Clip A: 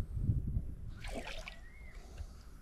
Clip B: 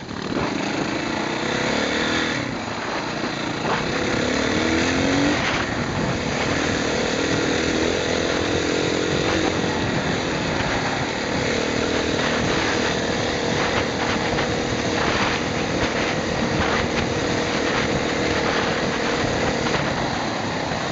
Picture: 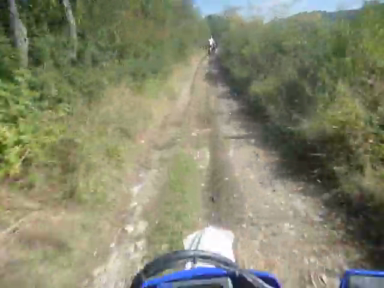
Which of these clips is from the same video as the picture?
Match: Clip B